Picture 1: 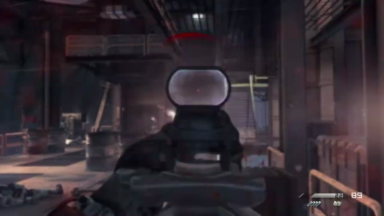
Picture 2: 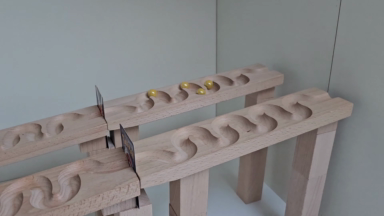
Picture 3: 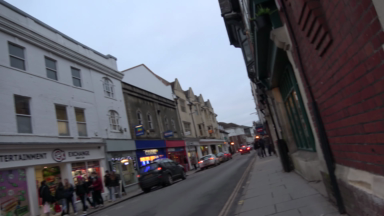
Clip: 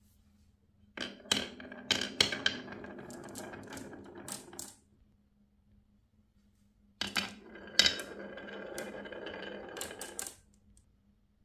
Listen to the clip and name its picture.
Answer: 2